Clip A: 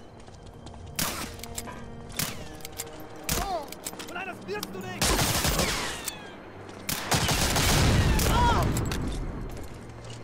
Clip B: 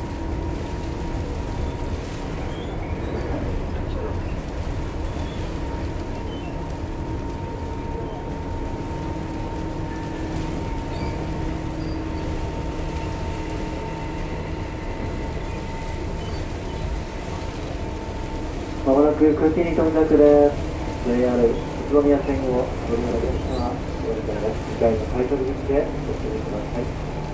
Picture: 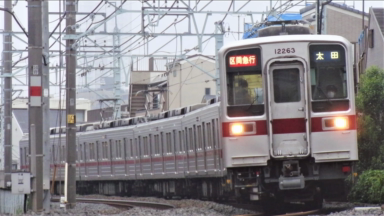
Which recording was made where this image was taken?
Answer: B